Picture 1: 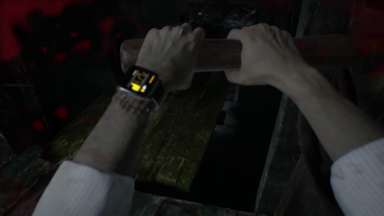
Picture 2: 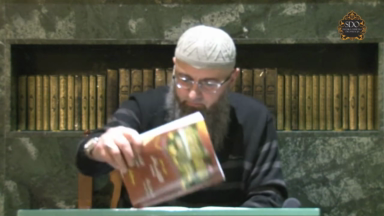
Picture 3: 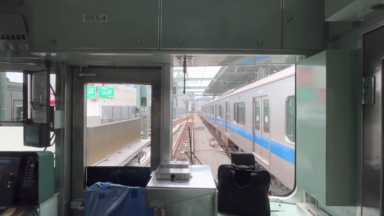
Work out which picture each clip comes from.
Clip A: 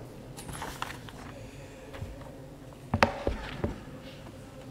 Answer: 2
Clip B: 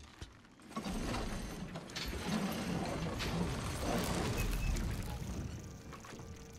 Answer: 1